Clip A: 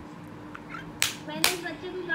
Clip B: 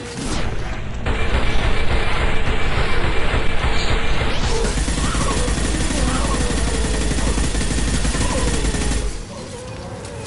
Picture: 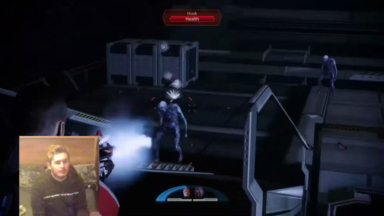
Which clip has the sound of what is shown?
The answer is B